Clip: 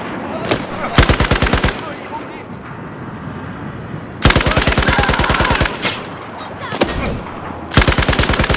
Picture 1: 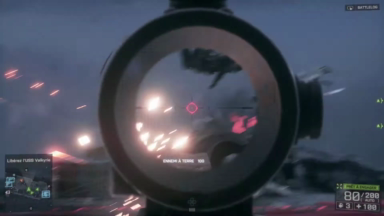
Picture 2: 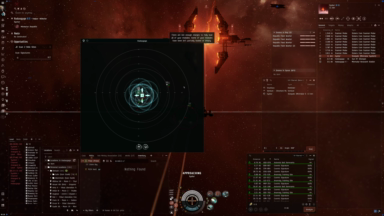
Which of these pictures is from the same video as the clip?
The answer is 1